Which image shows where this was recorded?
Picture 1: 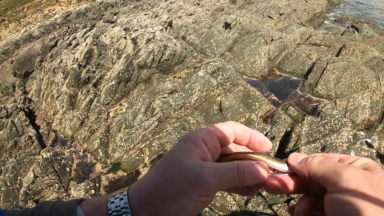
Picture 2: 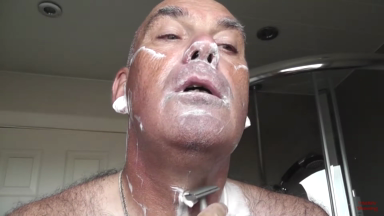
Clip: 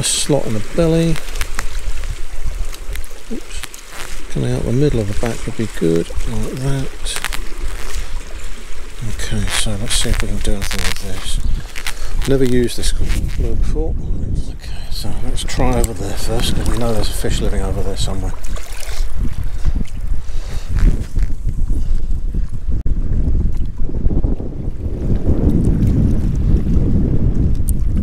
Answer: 1